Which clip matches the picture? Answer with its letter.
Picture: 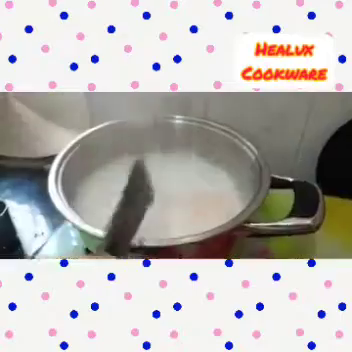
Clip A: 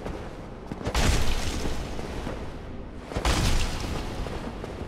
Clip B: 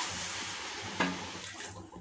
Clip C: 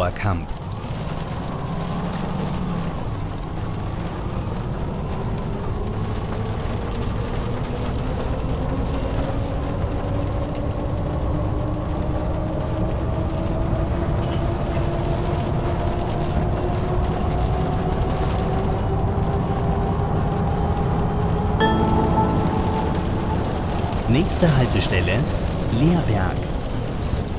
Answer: B